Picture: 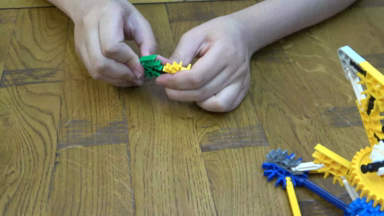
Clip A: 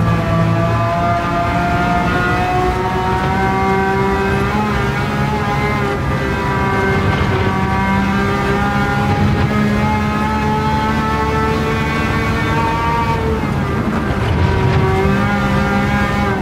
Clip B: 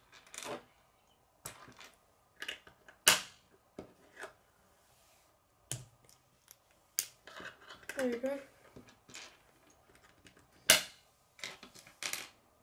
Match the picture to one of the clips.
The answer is B